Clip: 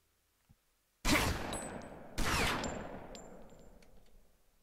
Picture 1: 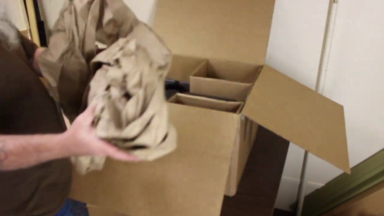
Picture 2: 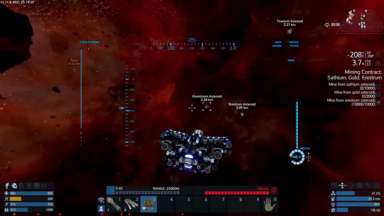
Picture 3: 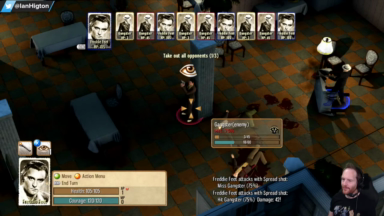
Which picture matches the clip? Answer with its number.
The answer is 3